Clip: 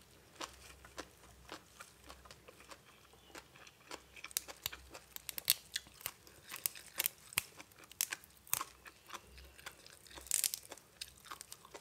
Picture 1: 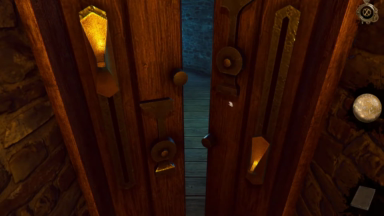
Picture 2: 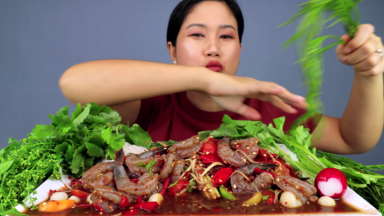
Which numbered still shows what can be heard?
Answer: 2